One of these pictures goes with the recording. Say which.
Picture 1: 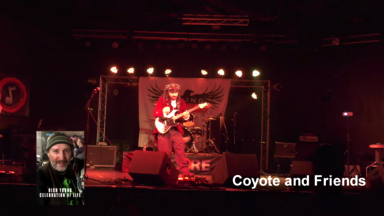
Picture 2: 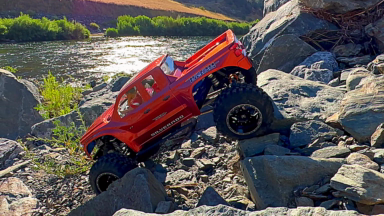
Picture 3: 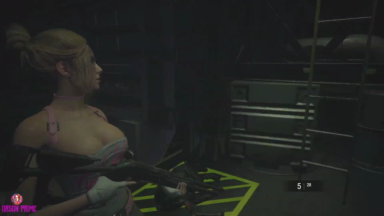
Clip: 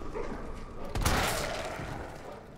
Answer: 3